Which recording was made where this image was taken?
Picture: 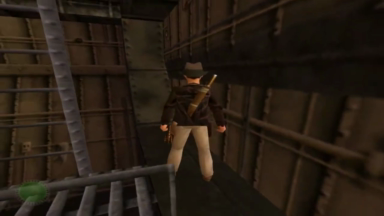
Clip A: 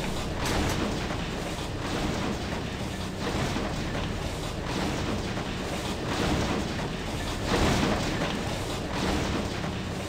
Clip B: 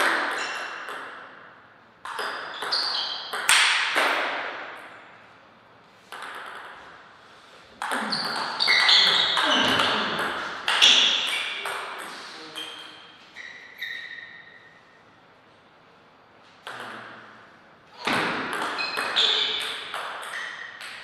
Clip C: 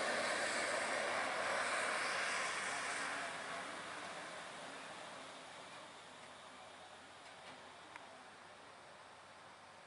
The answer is A